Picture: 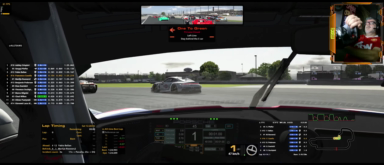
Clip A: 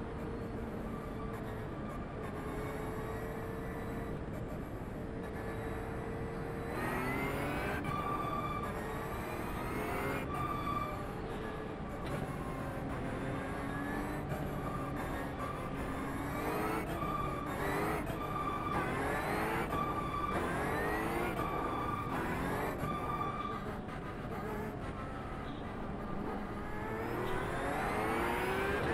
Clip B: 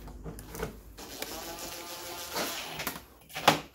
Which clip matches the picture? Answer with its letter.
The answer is A